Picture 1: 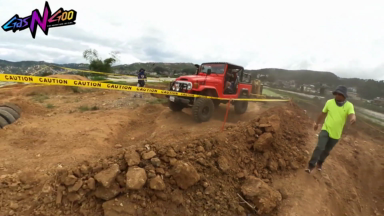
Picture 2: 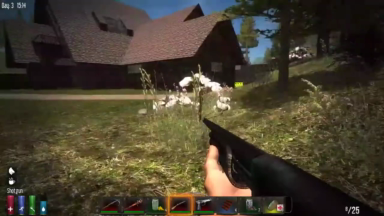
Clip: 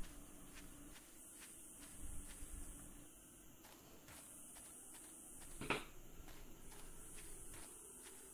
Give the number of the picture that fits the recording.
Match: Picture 2